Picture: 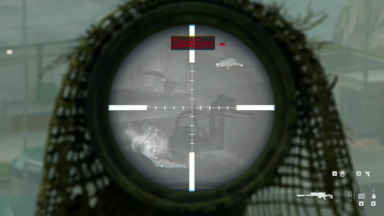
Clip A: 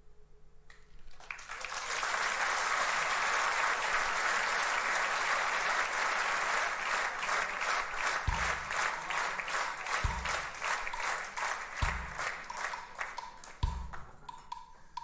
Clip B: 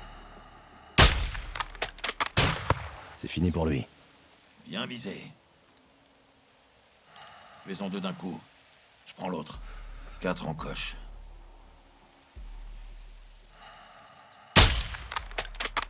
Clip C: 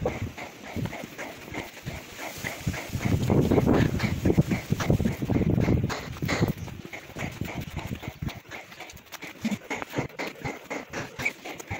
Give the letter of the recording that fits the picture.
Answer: B